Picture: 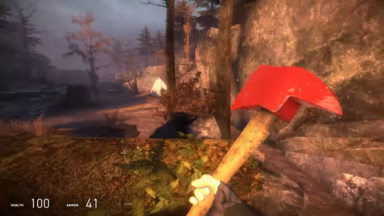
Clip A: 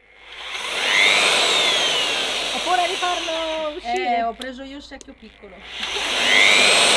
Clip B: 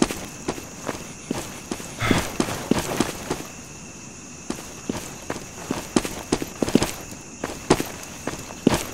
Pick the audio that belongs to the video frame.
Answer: B